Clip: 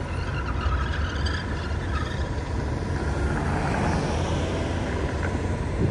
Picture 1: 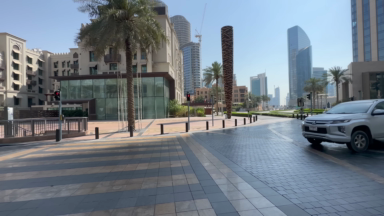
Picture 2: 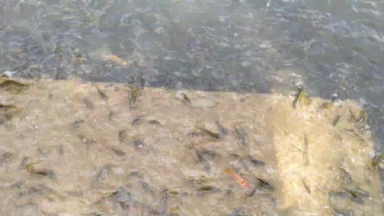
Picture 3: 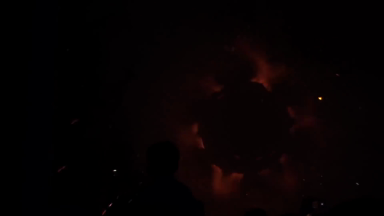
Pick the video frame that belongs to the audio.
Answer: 1